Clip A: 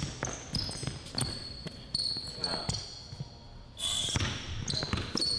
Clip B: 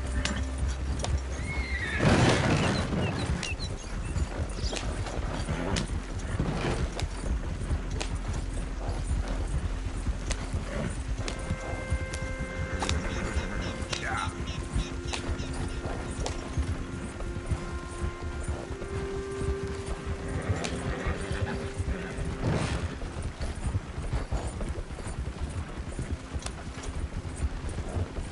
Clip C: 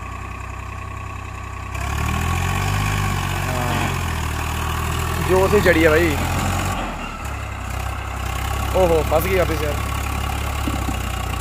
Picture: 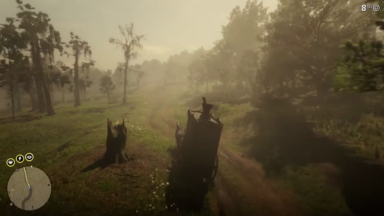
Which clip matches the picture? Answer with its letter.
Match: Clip B